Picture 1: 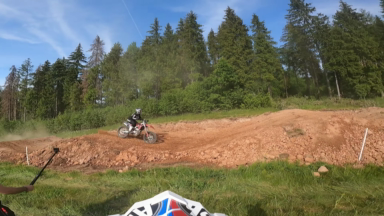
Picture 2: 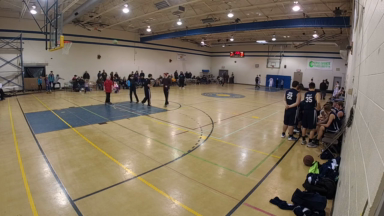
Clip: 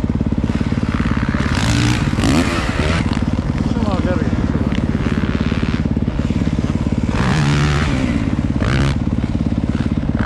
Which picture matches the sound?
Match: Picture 1